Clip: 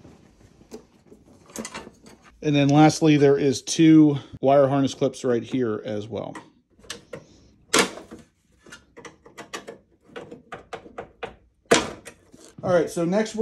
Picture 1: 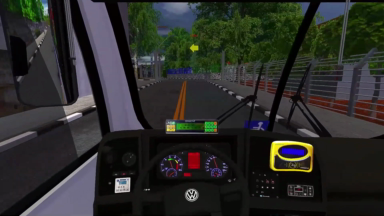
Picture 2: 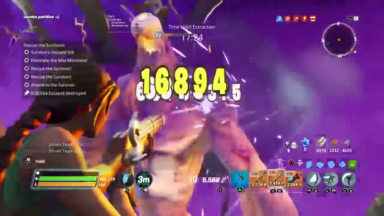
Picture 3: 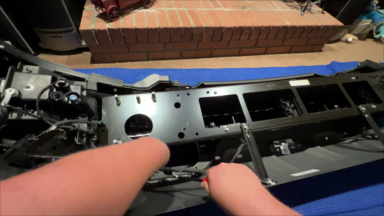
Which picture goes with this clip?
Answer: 3